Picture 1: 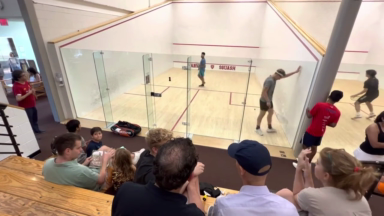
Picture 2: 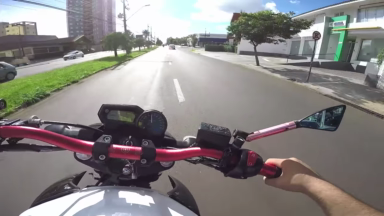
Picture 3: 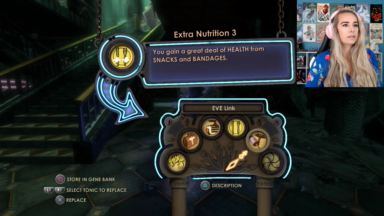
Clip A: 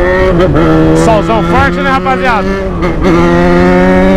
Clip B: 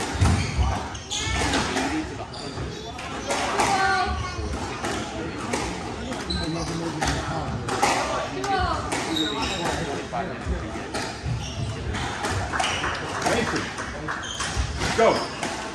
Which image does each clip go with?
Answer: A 2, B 1